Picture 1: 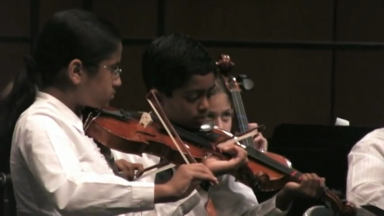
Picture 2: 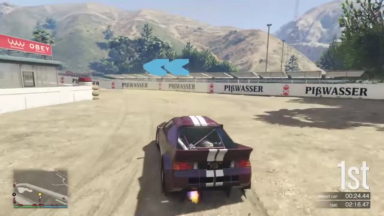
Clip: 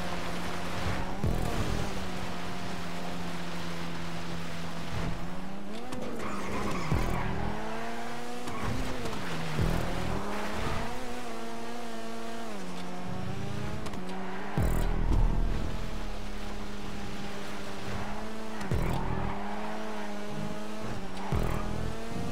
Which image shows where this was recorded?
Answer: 2